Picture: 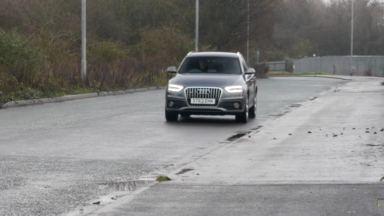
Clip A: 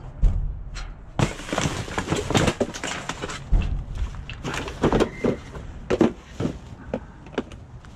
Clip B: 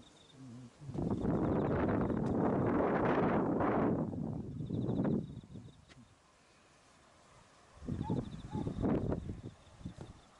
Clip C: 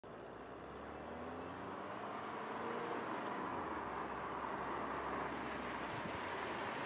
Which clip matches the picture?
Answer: C